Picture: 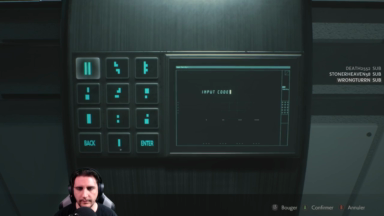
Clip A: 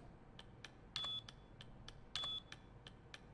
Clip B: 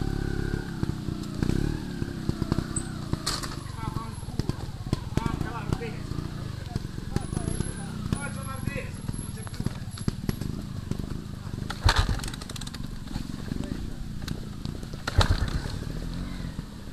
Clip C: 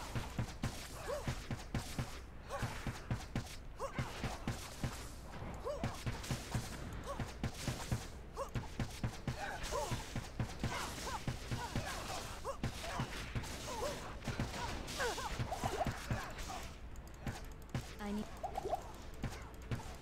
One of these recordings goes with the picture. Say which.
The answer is A